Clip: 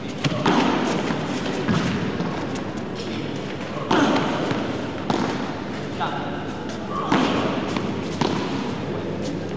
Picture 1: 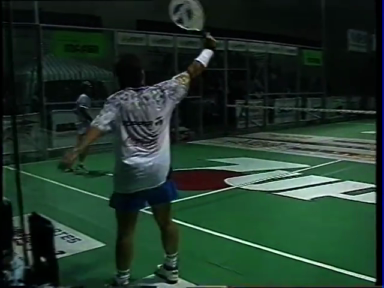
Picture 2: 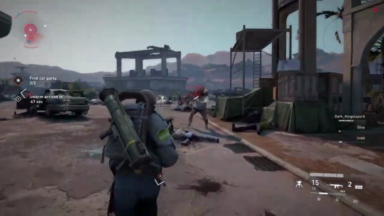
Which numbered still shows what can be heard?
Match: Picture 1